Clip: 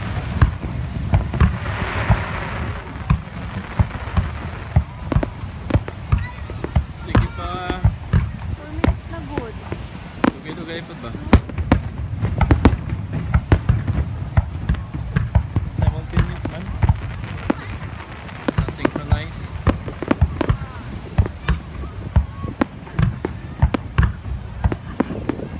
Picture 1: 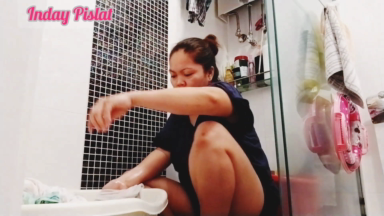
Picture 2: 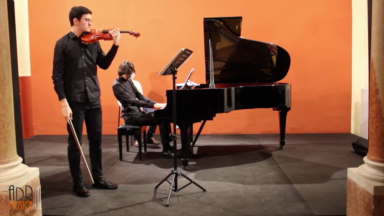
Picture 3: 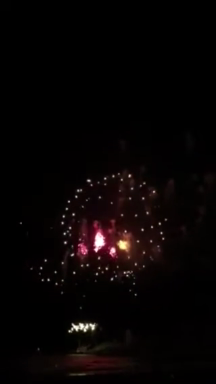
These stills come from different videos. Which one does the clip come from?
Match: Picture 3